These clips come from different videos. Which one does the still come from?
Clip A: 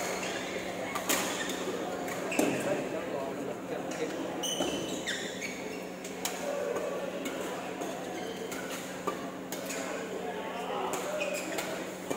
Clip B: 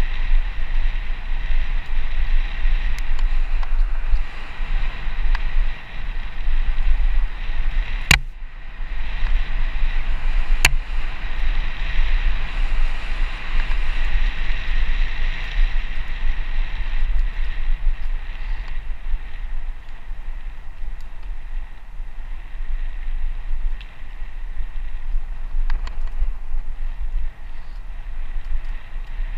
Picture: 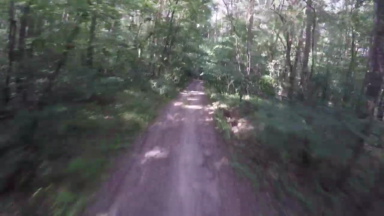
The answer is B